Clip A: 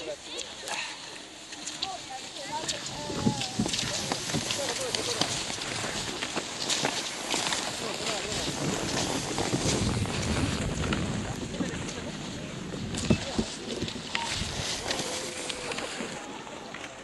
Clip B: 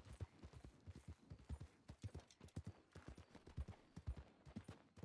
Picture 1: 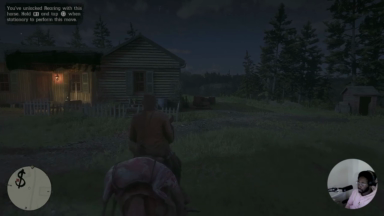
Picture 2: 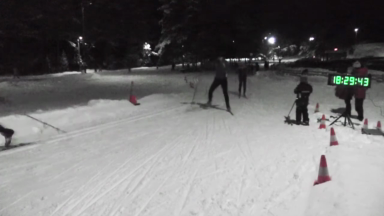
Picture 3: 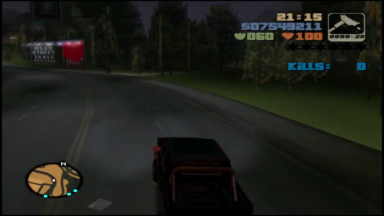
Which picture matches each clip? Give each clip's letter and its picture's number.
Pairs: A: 2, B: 1